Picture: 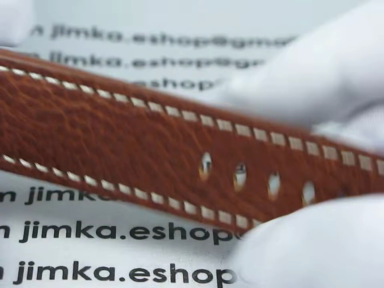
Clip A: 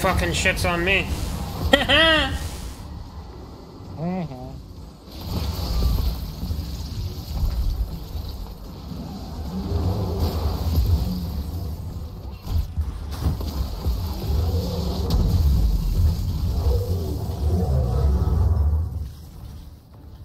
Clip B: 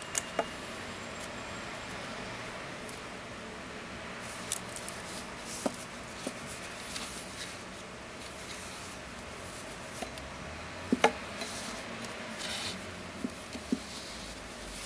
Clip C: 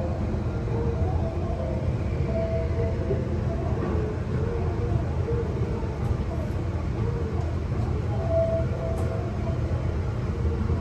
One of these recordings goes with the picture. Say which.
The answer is B